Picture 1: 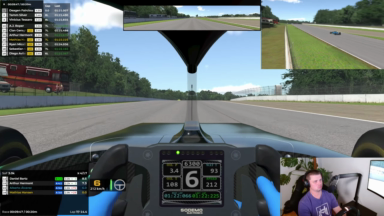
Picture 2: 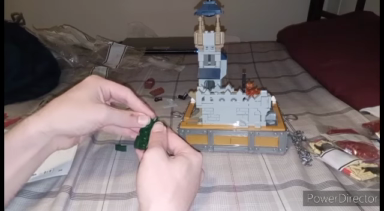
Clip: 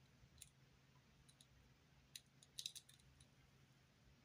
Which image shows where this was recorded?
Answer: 2